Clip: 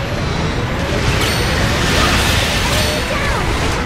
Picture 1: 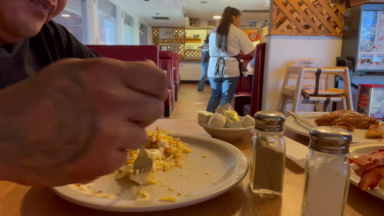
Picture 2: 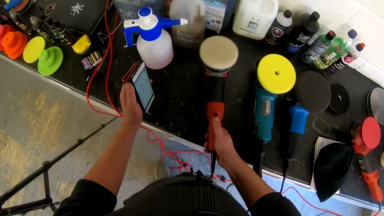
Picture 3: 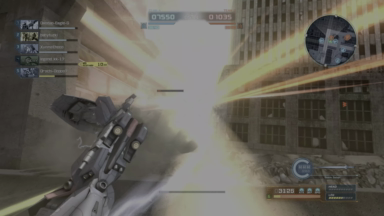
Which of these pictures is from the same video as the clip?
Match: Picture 3